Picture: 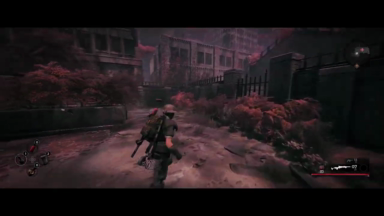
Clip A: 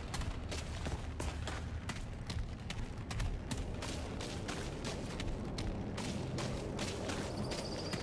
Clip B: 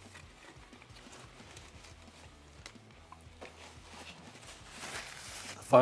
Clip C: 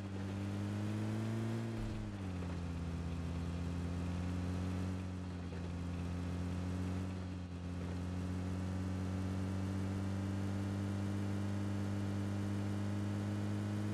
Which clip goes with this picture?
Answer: A